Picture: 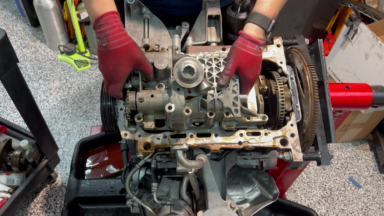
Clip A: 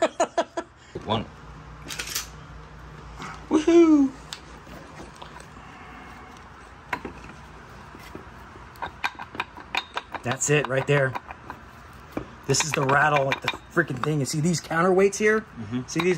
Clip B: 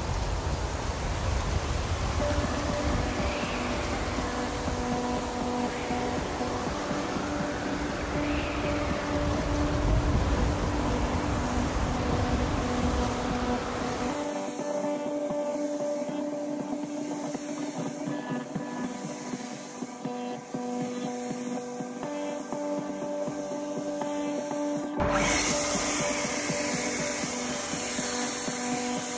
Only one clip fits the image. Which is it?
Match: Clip A